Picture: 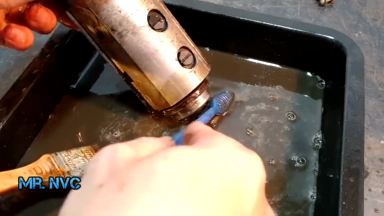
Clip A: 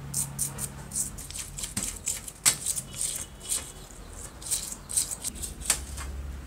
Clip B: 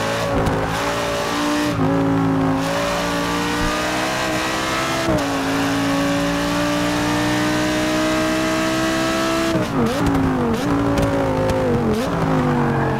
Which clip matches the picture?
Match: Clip A